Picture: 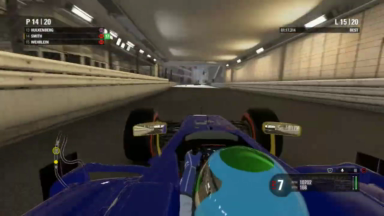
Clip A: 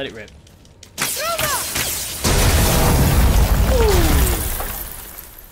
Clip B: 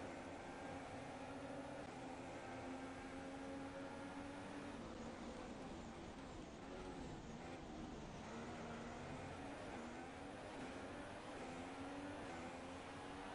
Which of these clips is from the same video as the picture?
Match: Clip B